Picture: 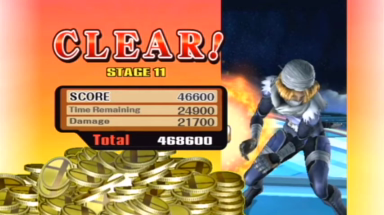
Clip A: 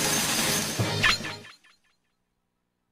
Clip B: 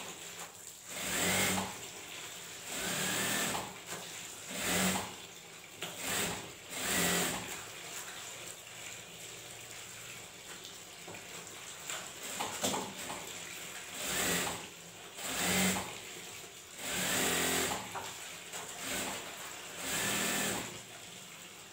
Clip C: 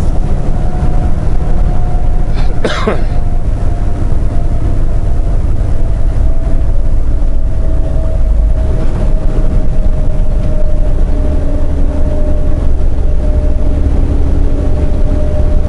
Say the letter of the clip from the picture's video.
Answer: A